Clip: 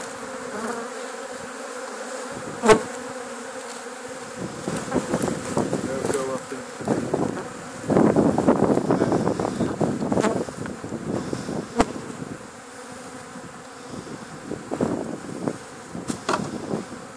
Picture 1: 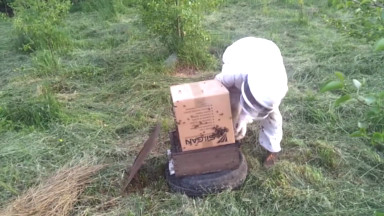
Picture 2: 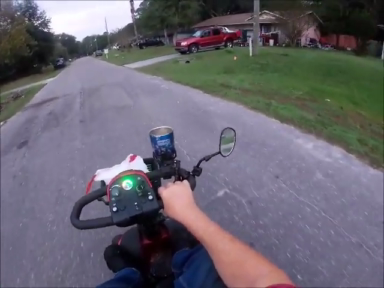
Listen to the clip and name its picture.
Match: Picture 1